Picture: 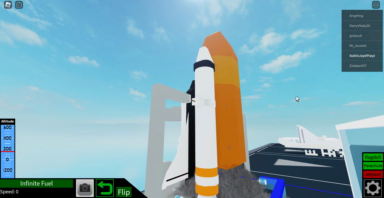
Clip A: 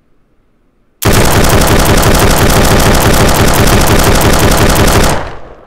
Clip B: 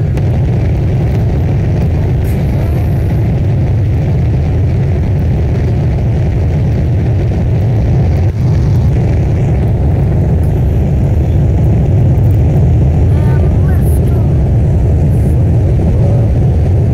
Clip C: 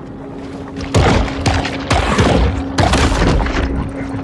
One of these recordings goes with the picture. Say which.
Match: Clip B